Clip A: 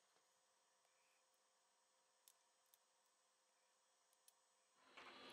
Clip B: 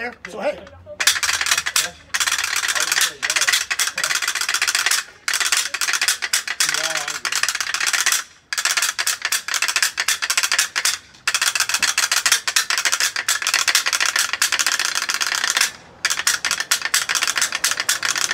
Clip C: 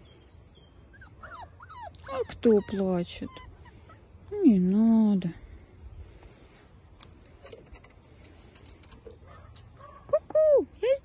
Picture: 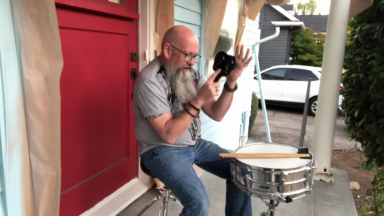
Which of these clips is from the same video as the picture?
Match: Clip B